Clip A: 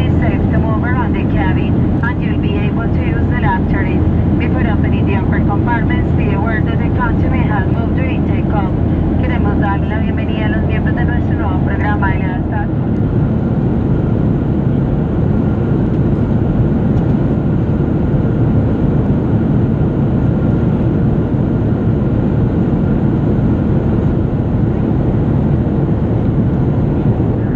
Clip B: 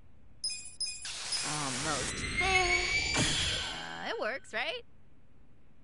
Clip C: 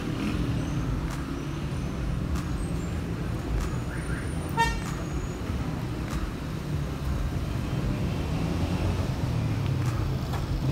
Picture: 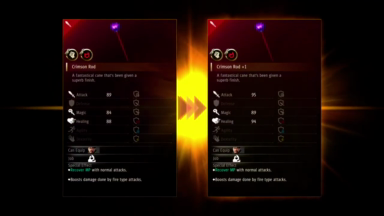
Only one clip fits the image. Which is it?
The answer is B